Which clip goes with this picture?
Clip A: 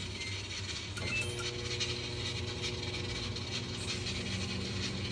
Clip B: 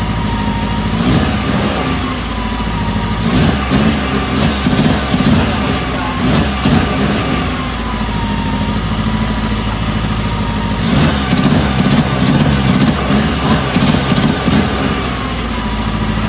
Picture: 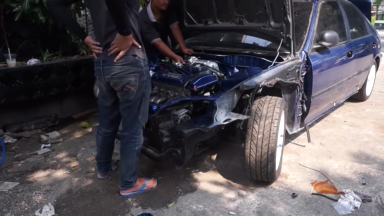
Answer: B